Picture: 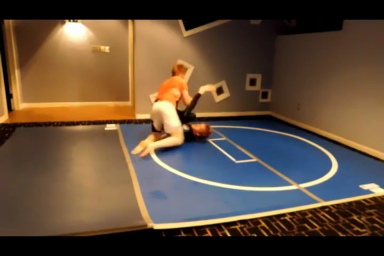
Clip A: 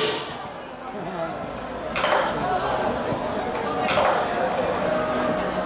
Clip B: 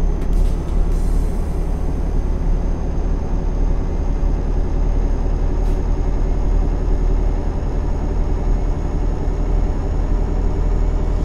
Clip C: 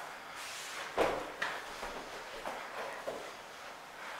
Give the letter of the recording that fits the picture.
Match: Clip C